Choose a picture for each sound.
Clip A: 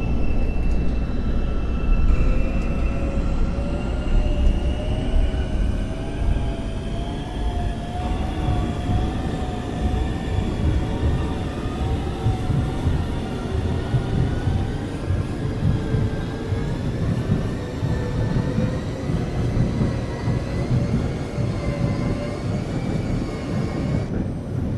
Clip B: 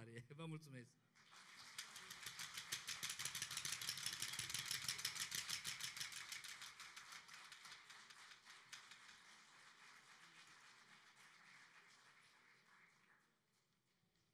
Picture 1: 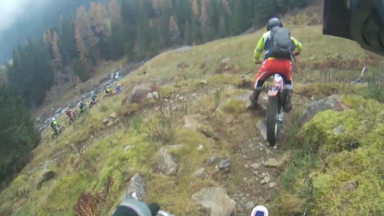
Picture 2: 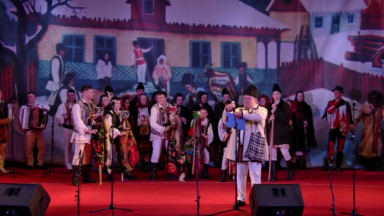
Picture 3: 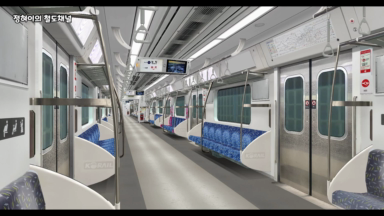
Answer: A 3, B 2